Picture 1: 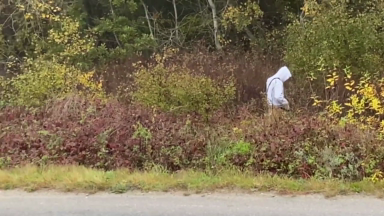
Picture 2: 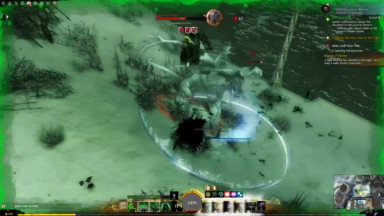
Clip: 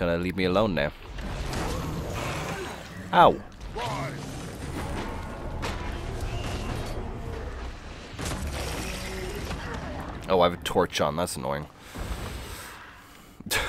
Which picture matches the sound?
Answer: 2